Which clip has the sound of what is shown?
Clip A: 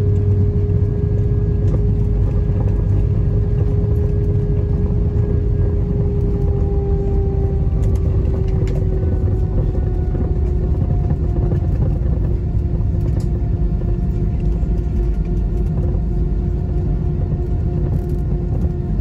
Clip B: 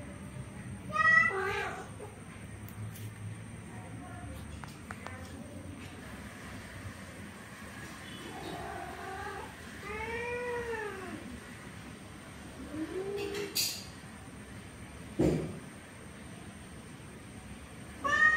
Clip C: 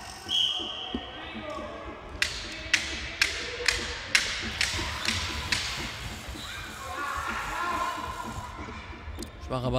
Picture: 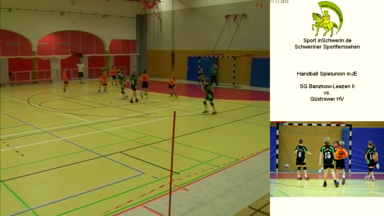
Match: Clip C